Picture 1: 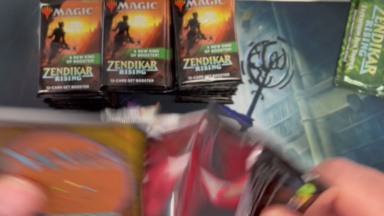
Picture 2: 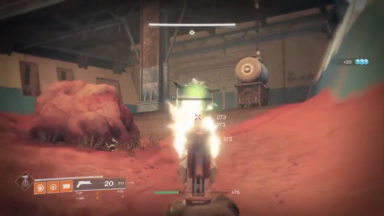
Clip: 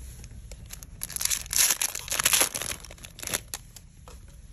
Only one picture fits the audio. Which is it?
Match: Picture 1